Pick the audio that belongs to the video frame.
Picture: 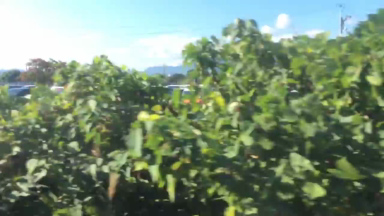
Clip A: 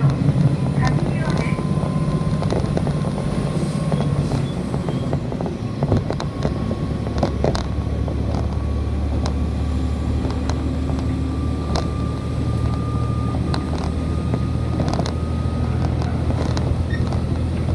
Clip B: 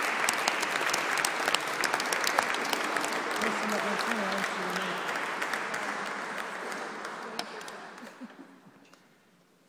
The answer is A